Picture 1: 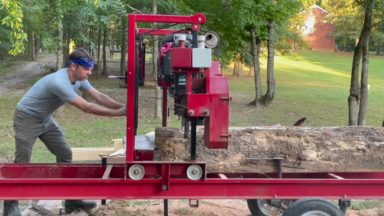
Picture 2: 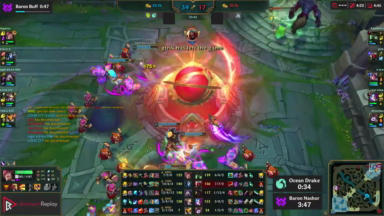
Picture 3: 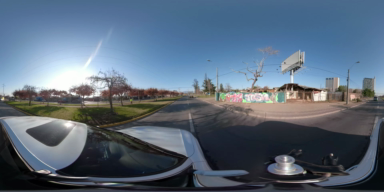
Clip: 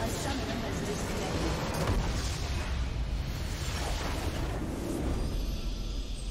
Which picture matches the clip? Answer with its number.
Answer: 2